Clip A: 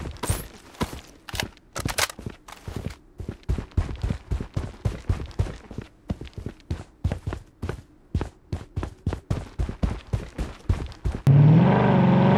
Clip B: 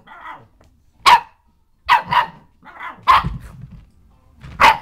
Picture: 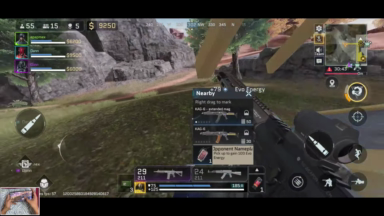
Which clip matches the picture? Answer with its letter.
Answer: A